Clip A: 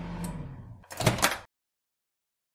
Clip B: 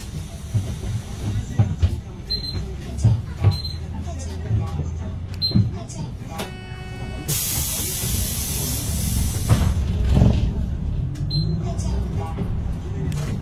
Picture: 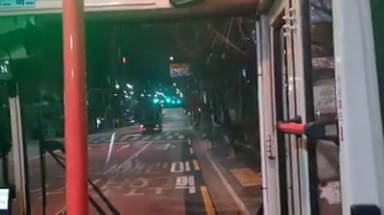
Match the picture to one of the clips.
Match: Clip B